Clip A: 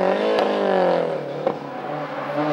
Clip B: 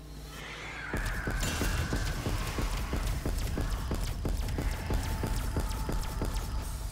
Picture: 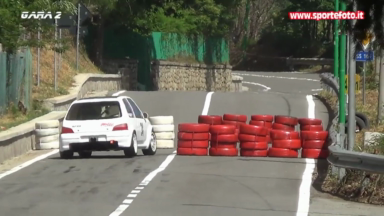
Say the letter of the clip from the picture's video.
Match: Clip A